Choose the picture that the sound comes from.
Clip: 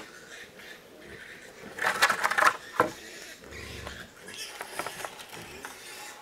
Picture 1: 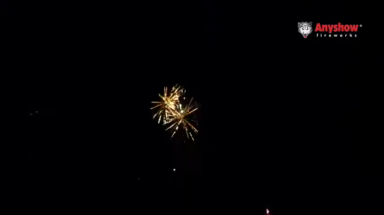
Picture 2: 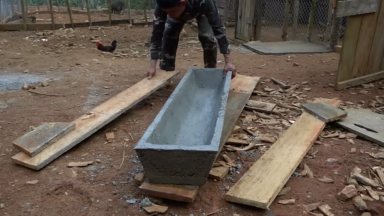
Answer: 2